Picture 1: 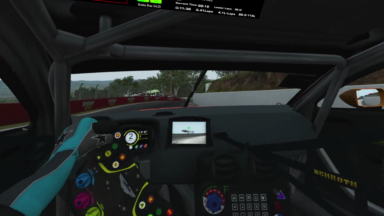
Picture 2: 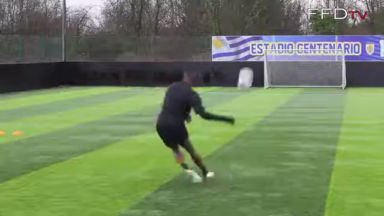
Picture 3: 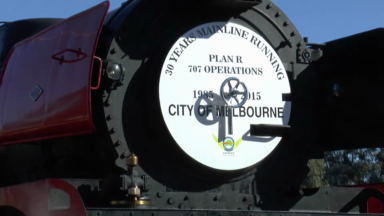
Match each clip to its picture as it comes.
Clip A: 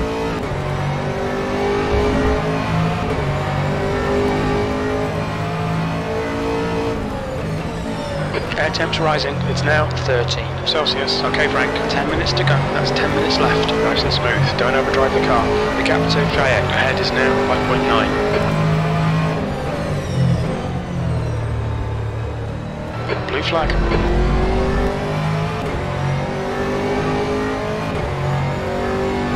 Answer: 1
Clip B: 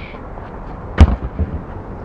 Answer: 2